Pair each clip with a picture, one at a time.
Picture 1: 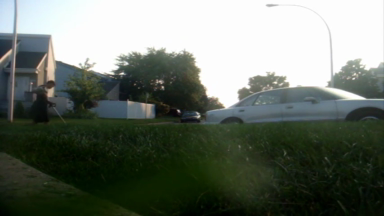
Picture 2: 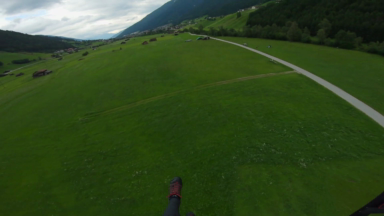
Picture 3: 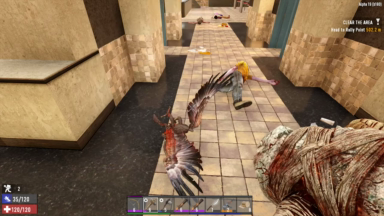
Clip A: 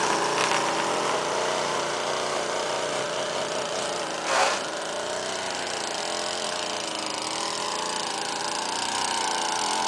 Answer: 1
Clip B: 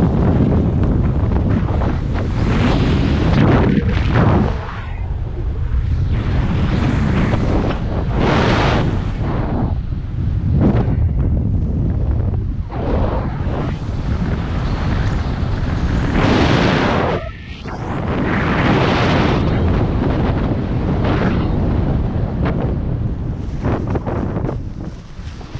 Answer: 2